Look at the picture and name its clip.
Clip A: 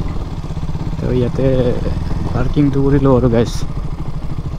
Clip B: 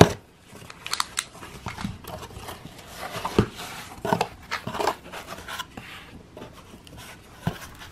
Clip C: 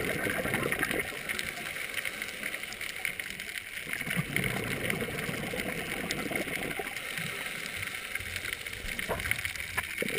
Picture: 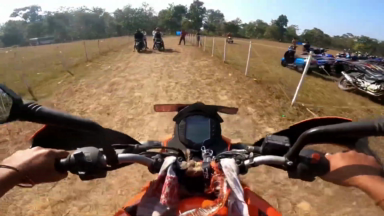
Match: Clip A